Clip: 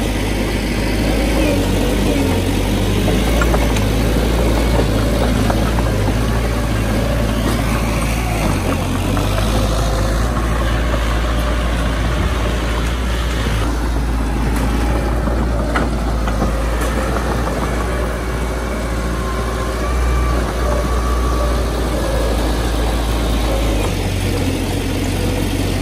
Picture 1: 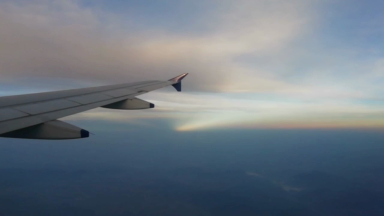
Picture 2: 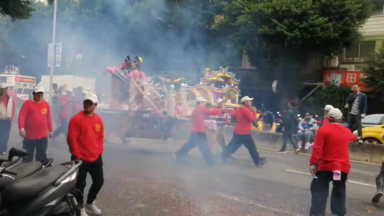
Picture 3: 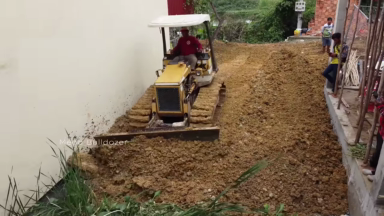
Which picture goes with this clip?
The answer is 3